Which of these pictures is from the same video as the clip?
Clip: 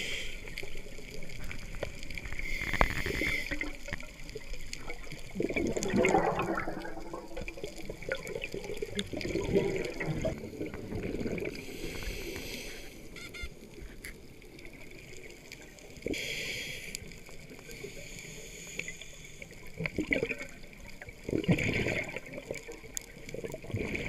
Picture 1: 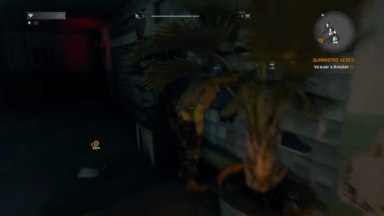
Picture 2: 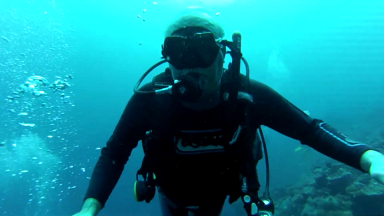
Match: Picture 2